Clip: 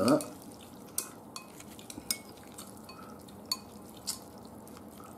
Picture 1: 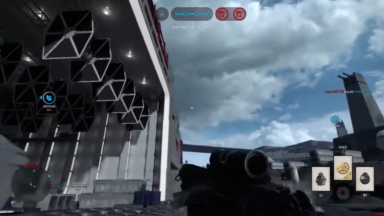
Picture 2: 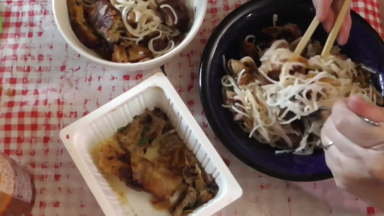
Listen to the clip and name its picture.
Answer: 2